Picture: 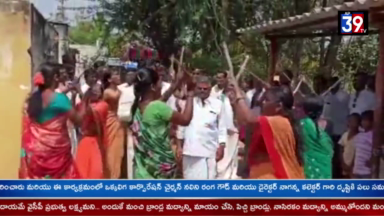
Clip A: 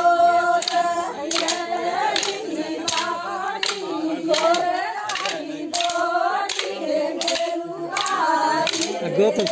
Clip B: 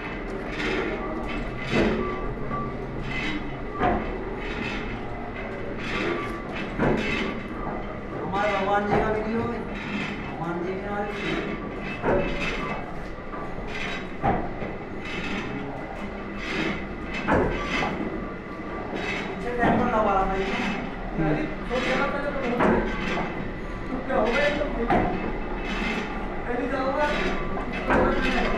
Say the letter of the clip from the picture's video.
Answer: A